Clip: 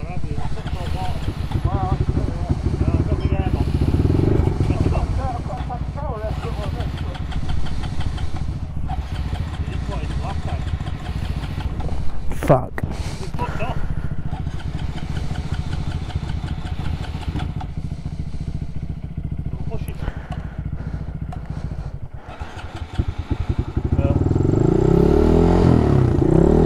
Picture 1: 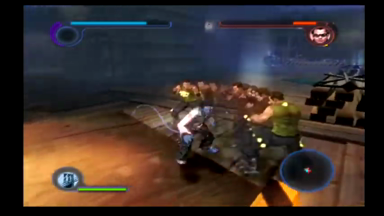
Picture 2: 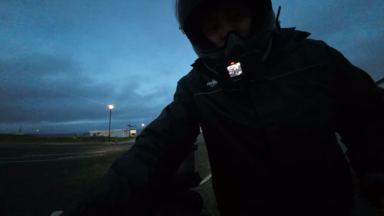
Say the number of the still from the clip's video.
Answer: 2